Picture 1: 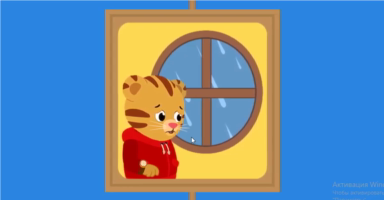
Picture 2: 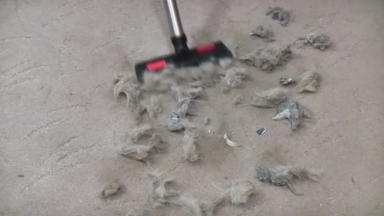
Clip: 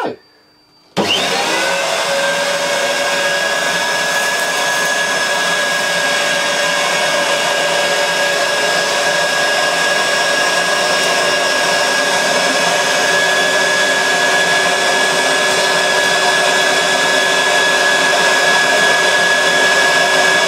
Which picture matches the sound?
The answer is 2